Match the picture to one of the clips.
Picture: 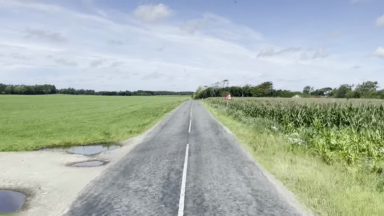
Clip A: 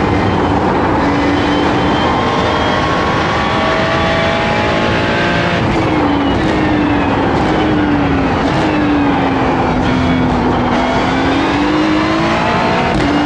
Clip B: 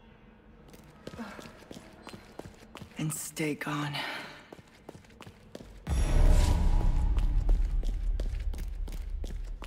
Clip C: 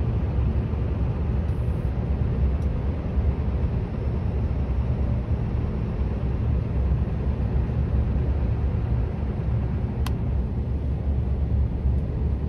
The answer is C